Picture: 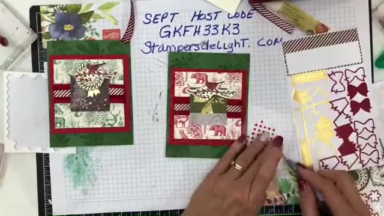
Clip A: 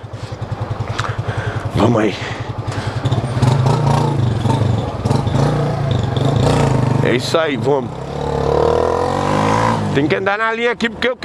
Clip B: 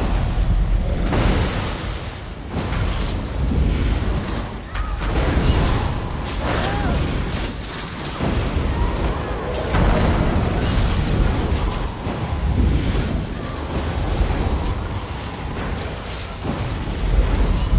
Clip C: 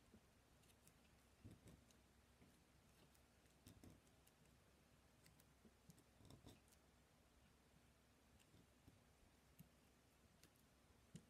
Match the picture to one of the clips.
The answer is C